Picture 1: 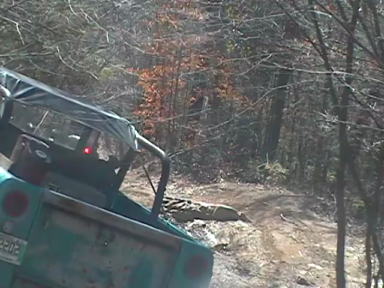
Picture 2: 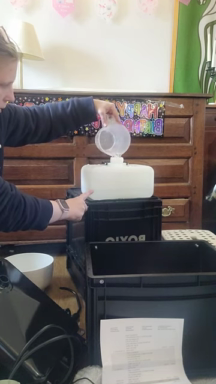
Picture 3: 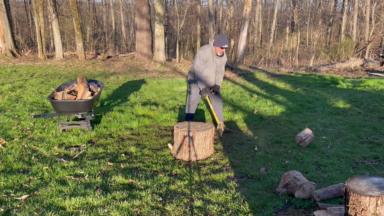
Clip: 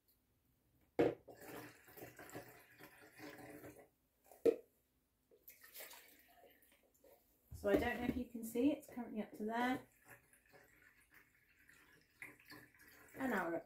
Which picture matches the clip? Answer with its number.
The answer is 2